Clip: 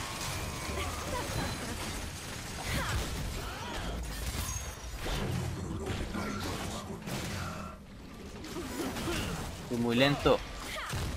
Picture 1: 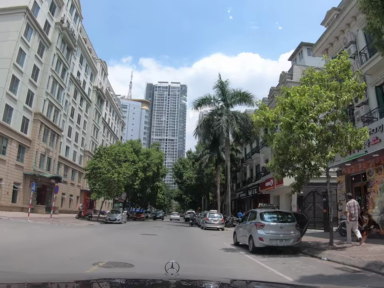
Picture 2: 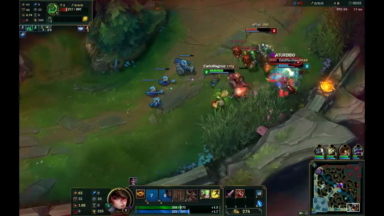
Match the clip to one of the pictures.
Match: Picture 2